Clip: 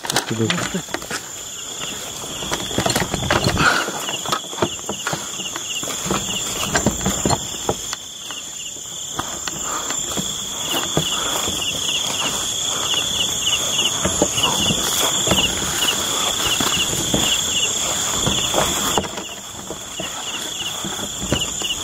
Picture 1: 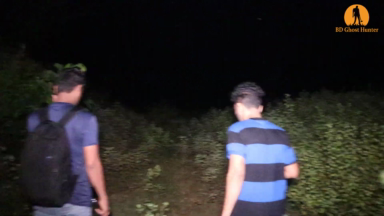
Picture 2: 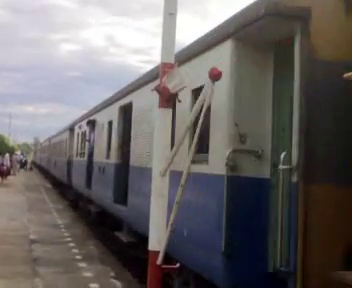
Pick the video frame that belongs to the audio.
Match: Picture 1